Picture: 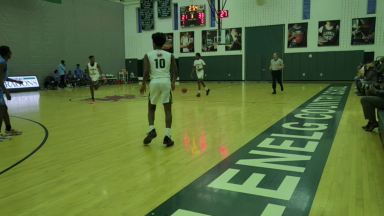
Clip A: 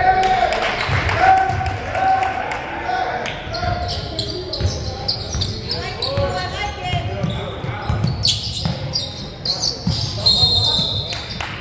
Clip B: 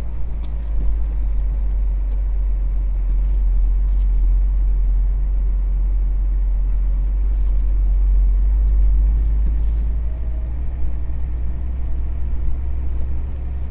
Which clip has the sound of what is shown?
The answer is A